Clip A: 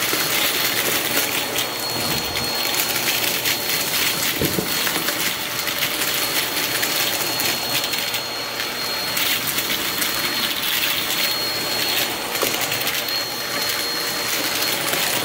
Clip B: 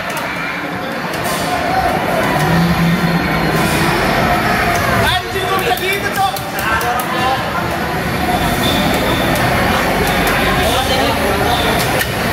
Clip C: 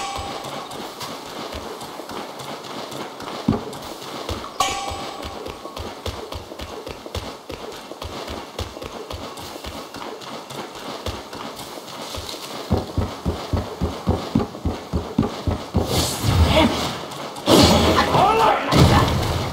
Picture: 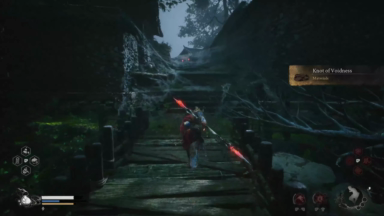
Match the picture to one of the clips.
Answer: C